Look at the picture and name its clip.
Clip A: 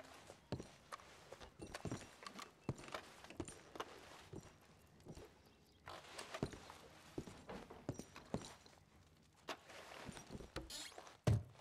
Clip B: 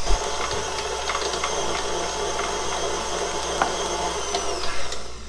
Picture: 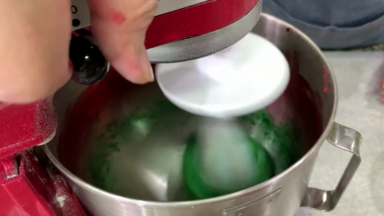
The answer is B